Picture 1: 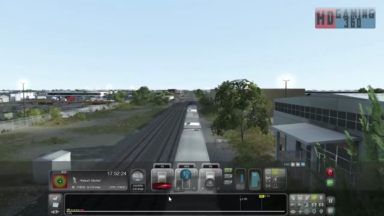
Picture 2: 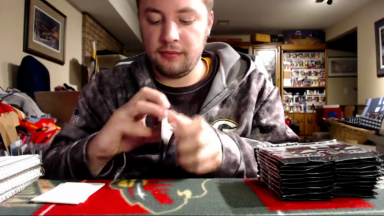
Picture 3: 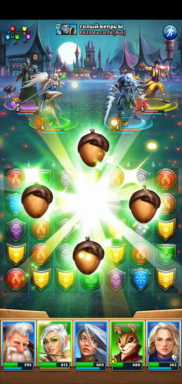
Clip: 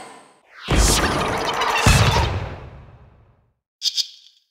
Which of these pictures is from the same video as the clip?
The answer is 3